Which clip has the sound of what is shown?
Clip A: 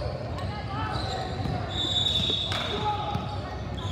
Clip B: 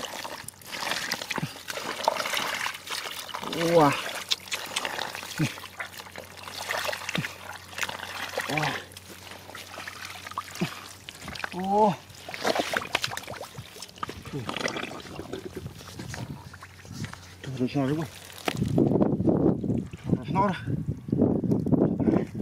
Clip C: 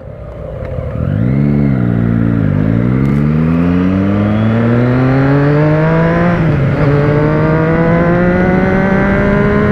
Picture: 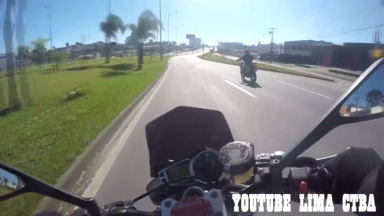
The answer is C